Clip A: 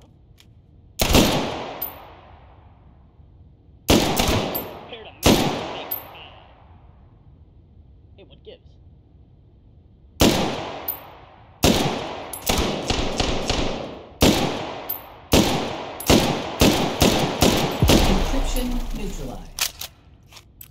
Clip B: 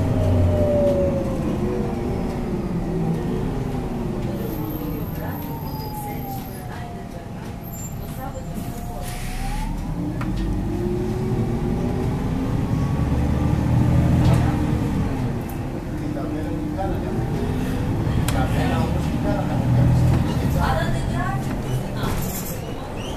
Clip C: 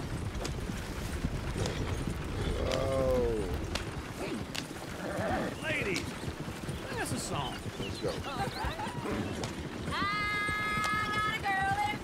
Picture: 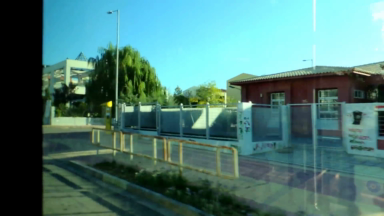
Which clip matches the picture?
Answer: B